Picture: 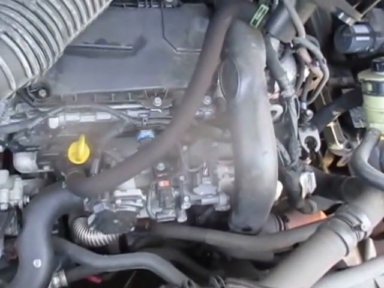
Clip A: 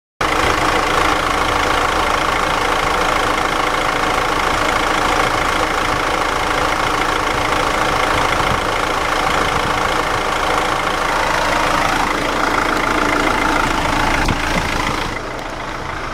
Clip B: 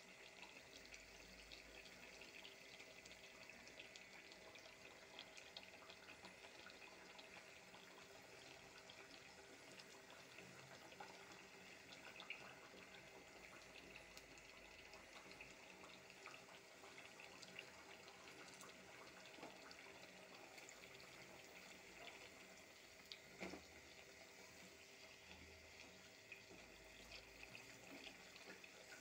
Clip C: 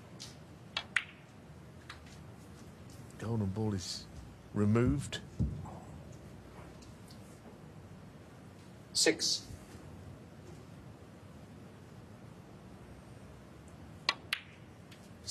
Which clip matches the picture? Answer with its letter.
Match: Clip A